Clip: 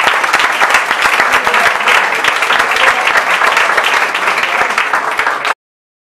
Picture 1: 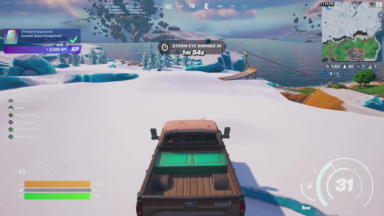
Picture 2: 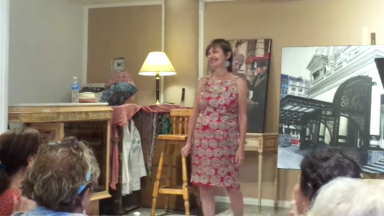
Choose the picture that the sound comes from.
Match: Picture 2